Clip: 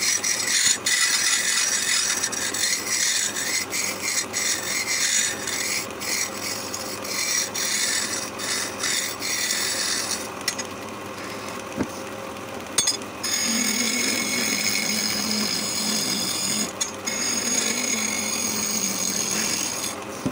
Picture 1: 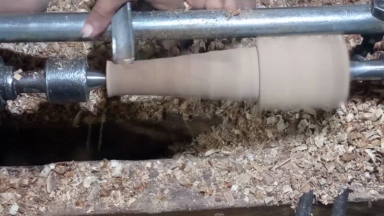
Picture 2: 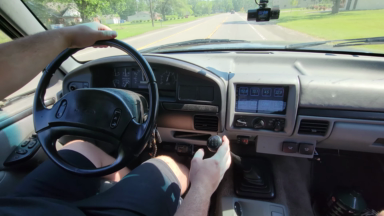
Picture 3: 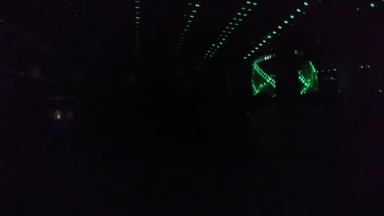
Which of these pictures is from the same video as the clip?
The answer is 1